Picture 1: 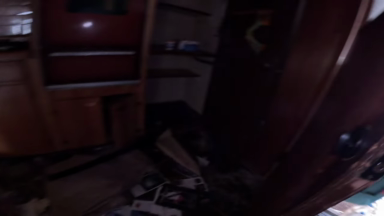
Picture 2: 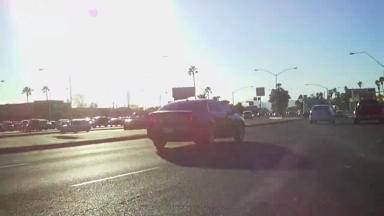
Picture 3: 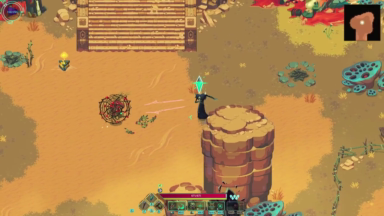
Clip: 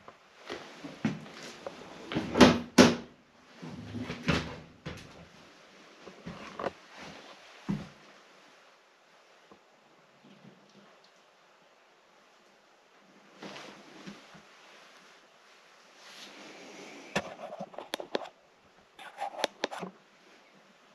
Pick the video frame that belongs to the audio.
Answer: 1